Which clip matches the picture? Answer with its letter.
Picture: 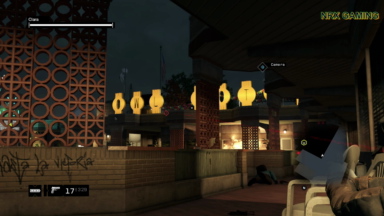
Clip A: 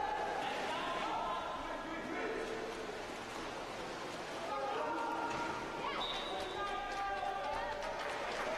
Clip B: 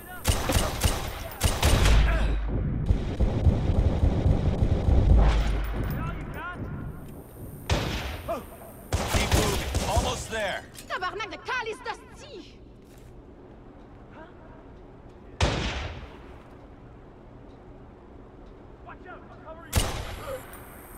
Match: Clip B